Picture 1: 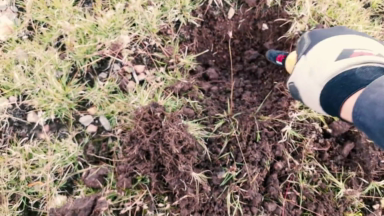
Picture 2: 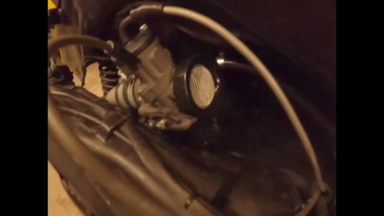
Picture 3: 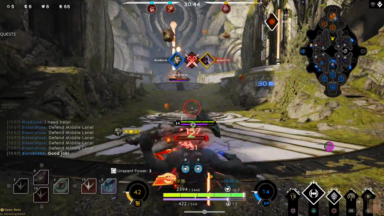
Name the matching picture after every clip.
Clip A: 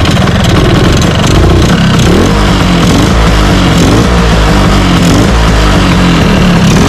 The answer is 2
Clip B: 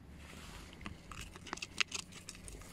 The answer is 1